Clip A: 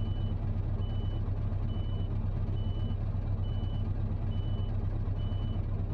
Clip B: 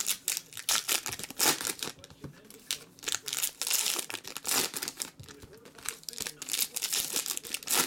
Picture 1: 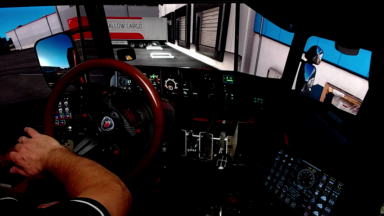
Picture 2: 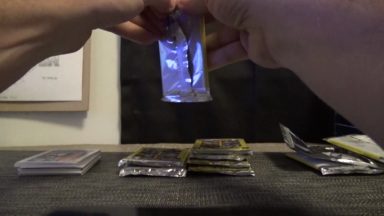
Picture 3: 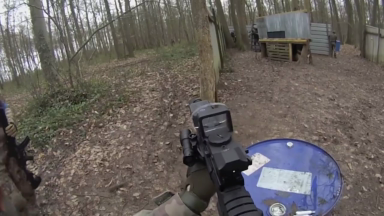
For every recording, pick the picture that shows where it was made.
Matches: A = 1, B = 2